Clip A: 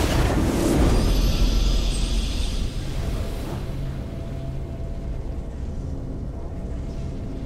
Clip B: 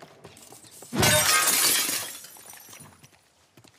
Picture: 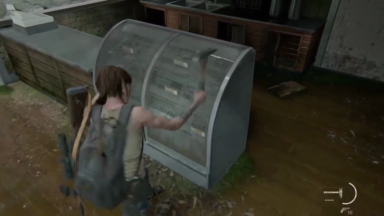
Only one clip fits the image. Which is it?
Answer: B